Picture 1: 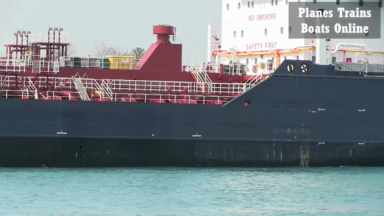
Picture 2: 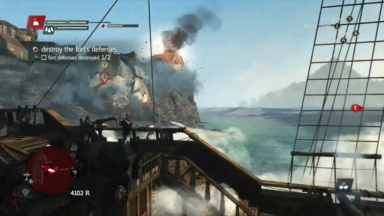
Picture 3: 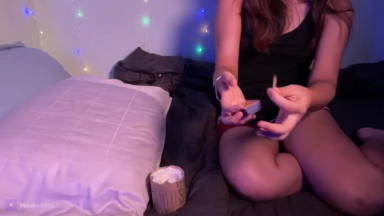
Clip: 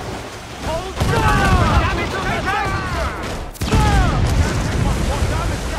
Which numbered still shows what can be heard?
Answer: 2